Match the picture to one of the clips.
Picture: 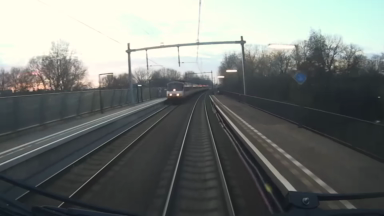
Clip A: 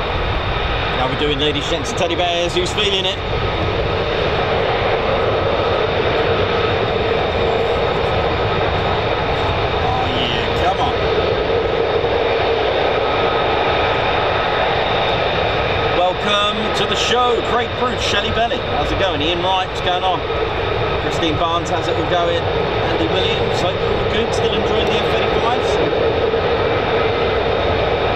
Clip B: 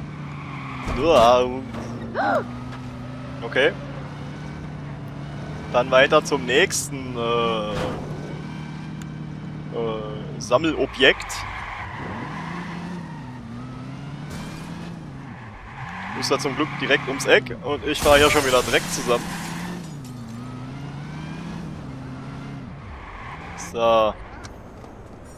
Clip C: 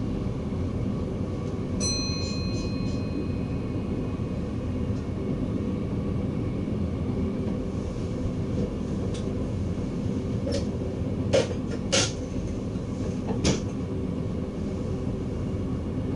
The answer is C